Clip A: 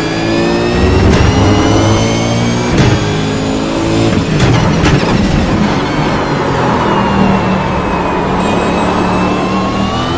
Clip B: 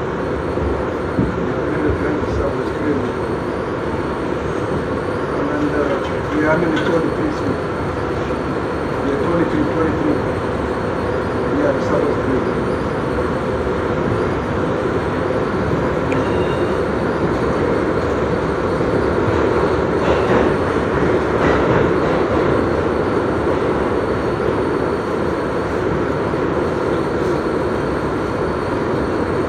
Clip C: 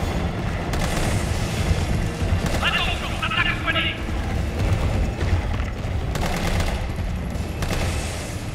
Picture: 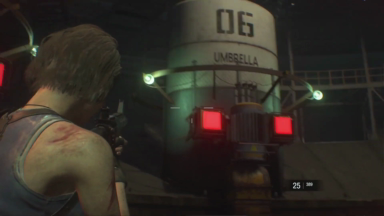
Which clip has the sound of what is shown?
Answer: C